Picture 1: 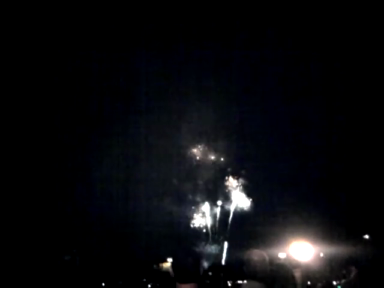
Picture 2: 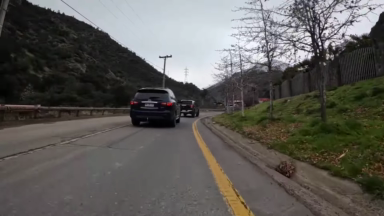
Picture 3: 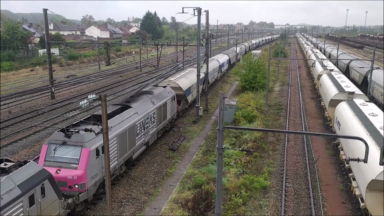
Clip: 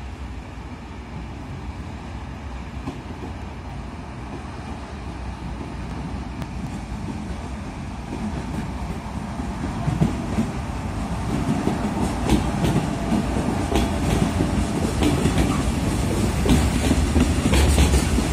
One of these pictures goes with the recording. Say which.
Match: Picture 3